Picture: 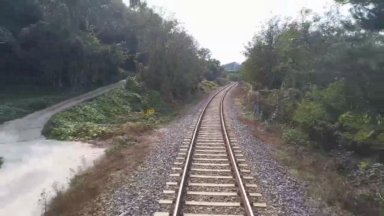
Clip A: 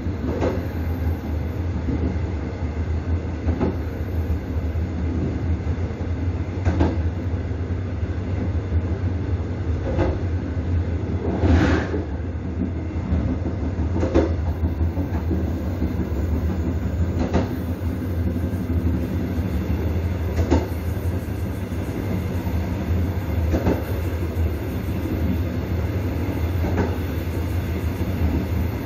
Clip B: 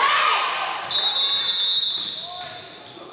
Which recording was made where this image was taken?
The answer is A